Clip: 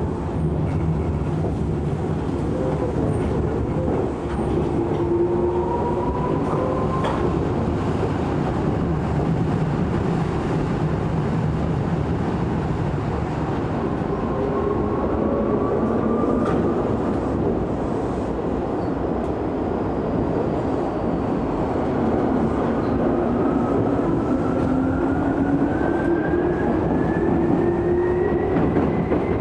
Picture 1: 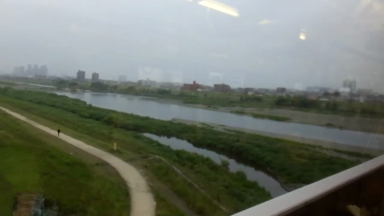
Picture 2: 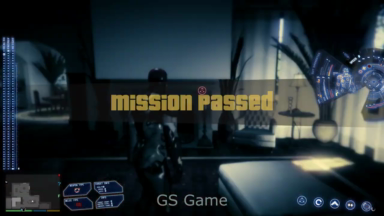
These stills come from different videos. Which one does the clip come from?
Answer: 1